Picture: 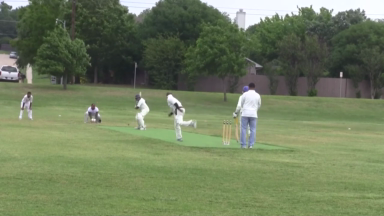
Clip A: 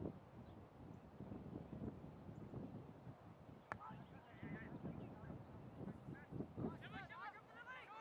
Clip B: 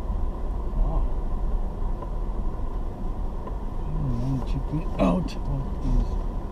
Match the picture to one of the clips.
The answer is A